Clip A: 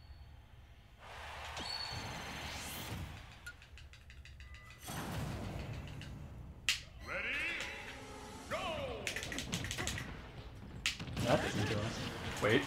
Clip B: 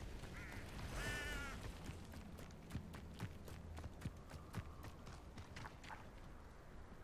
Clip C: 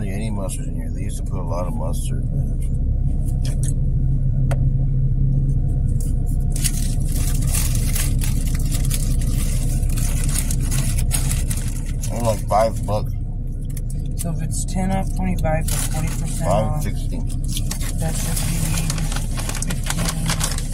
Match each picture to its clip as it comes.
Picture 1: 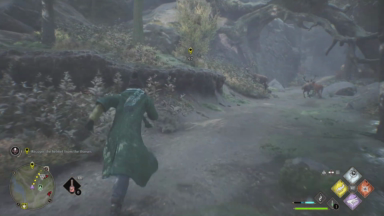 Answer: B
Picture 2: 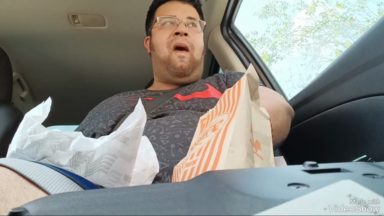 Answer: C